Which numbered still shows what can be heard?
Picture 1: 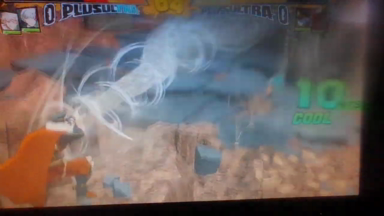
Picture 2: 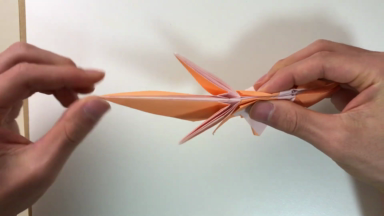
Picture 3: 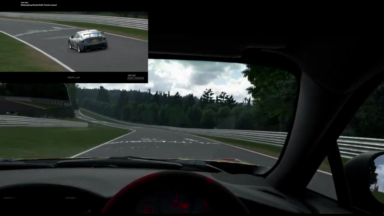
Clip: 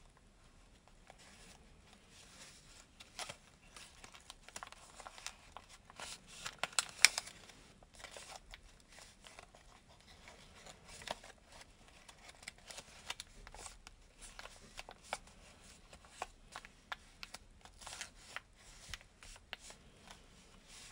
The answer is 2